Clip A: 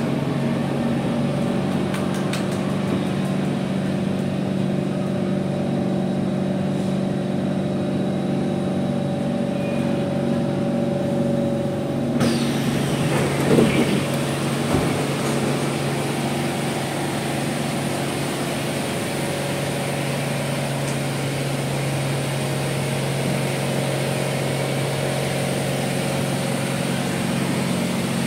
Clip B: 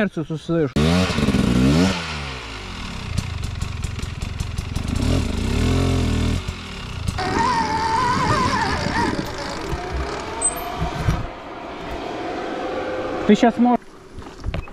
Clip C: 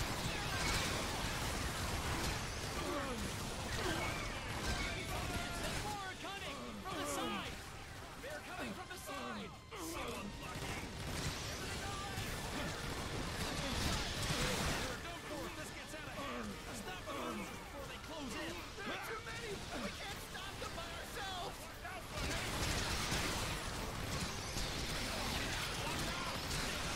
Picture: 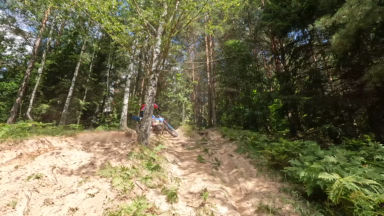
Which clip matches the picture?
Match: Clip B